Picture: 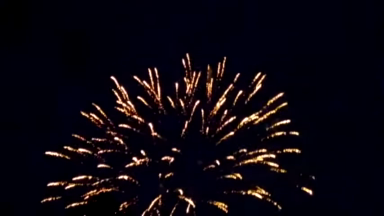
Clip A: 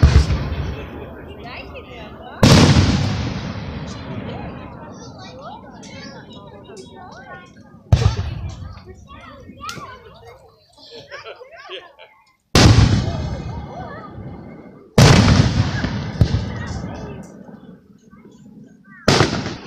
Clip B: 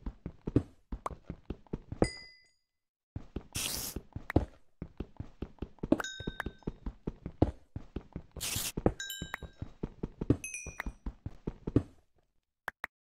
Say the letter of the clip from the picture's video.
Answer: A